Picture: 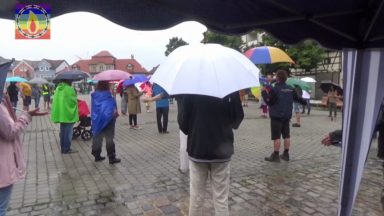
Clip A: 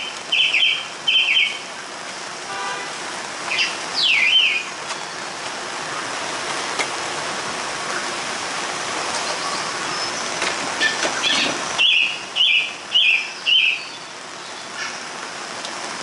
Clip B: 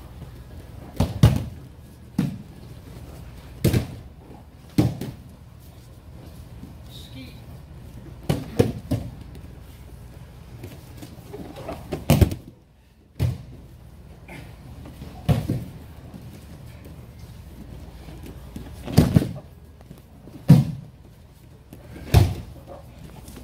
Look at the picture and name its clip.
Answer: A